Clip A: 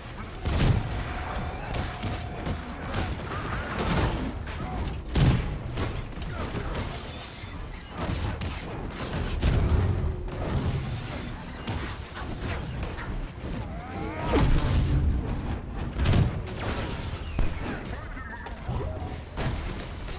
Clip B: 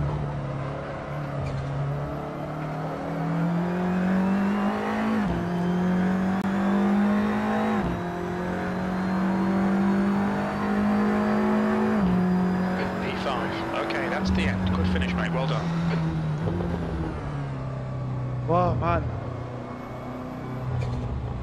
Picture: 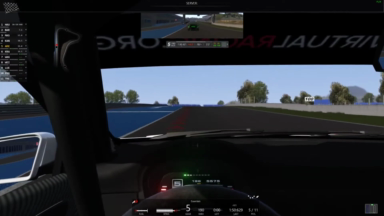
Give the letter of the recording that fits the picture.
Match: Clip B